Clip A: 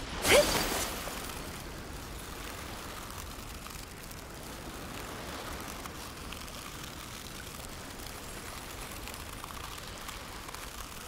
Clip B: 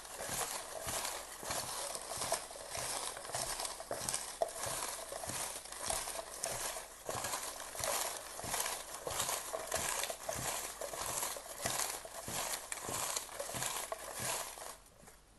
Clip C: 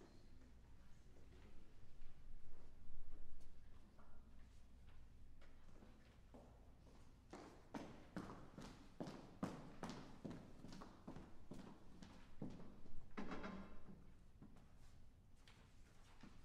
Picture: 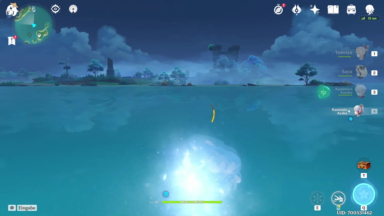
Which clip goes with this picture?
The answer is A